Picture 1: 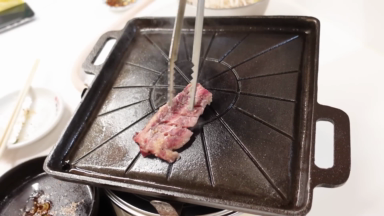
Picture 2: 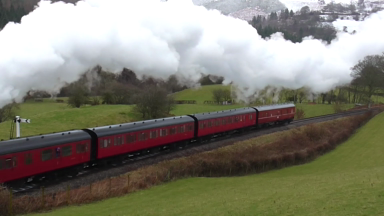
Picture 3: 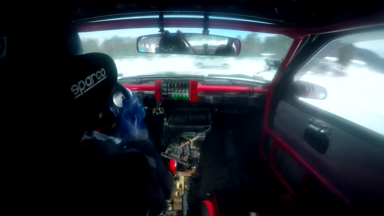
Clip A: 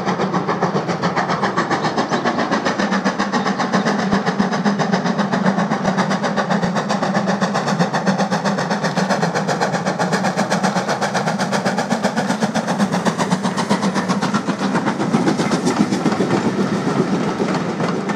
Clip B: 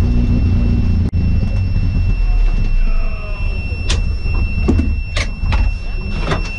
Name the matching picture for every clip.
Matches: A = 2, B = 3